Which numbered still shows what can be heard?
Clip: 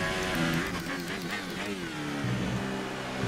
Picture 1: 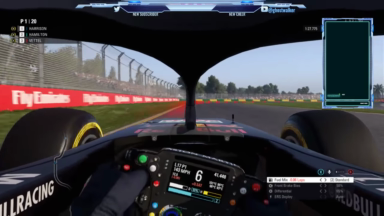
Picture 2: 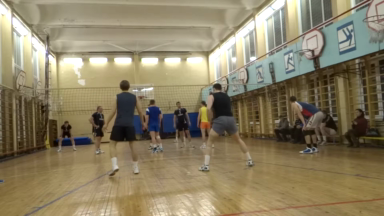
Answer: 1